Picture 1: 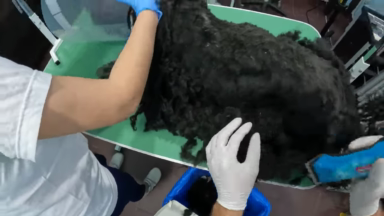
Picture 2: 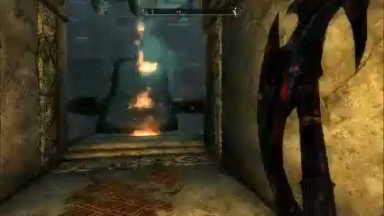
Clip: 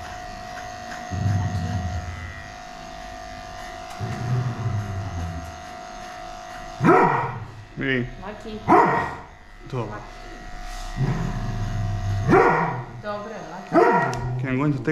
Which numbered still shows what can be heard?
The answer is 1